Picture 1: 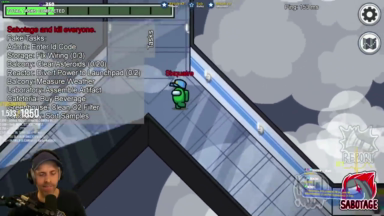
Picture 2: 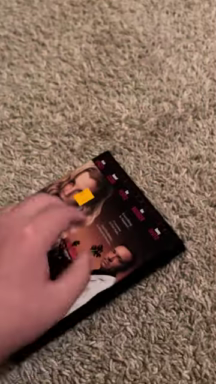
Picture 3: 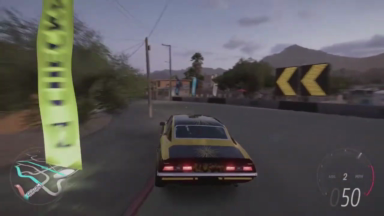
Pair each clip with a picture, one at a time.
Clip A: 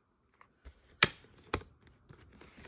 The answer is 2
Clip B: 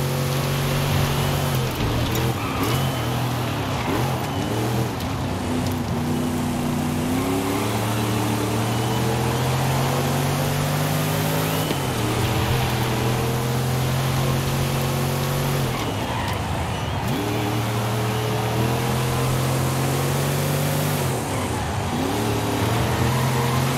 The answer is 3